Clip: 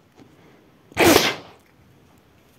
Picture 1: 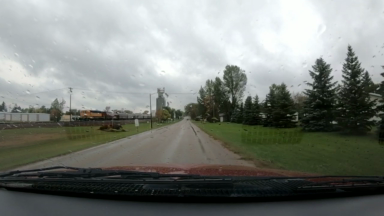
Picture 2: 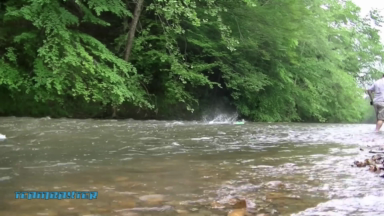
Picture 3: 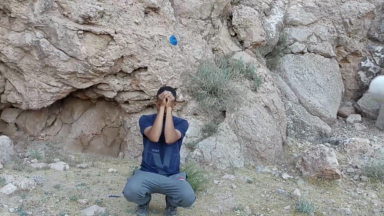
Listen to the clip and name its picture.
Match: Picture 3